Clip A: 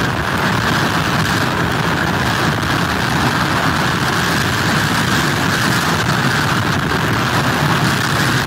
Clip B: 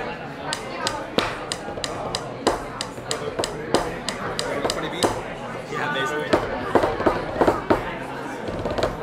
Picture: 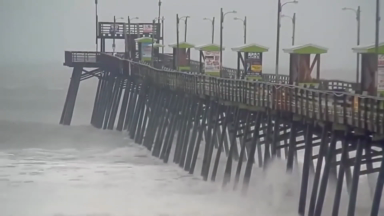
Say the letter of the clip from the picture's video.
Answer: A